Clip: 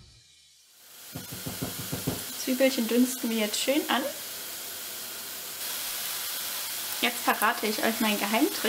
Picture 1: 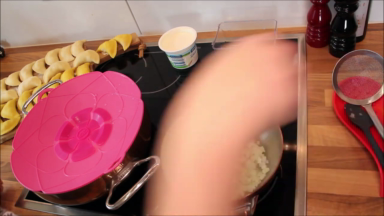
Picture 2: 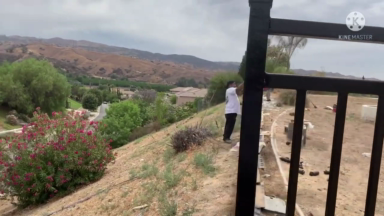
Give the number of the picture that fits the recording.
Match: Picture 1